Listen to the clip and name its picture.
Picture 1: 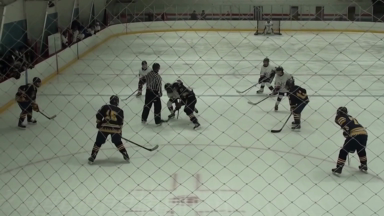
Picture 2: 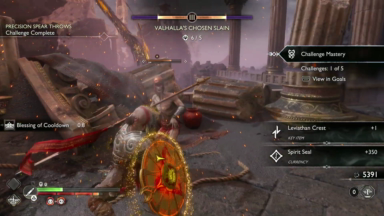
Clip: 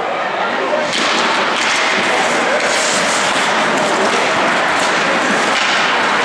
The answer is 1